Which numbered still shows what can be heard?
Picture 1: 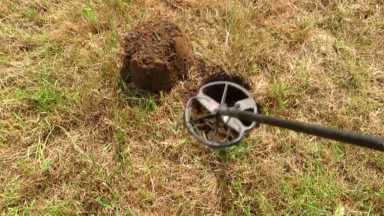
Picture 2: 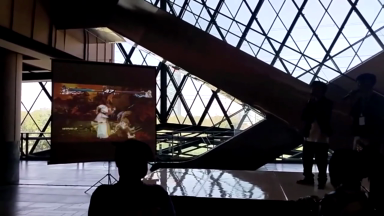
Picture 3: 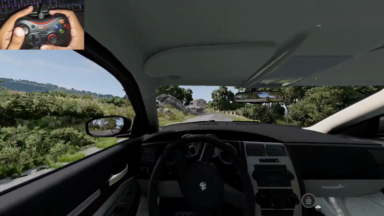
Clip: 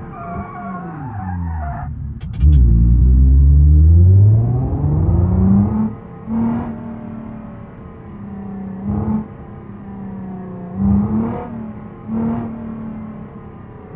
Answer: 3